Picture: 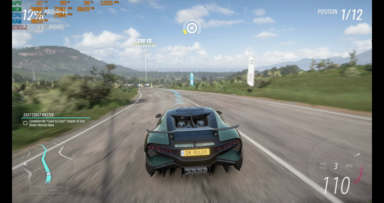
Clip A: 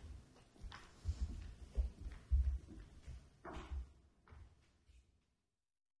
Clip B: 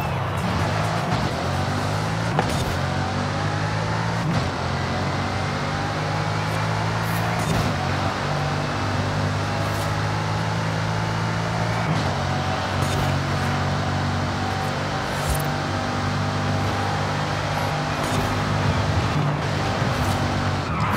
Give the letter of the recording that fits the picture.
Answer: B